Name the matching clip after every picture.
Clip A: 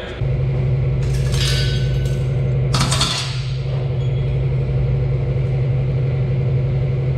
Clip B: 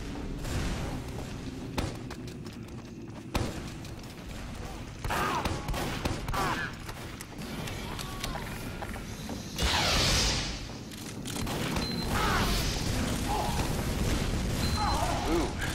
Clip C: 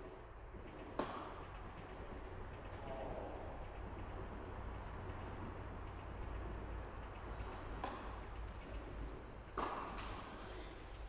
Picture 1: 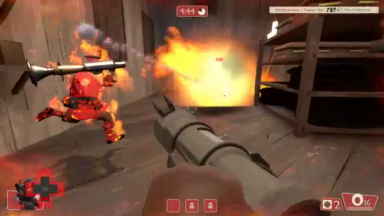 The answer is B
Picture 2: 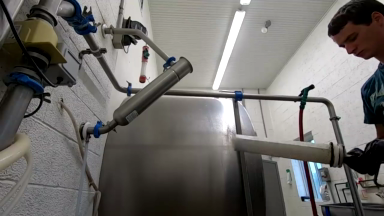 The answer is A